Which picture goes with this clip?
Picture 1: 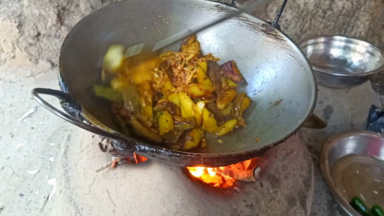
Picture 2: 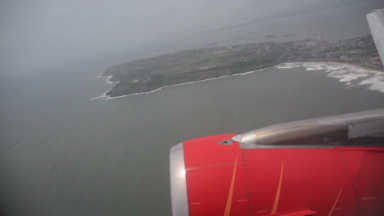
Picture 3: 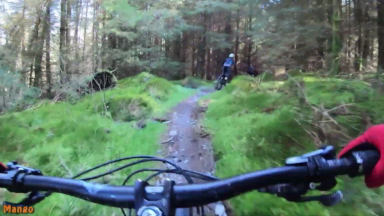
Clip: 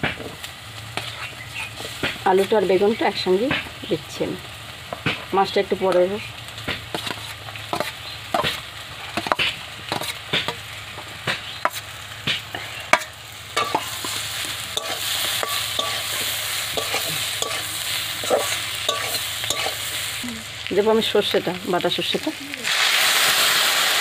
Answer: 1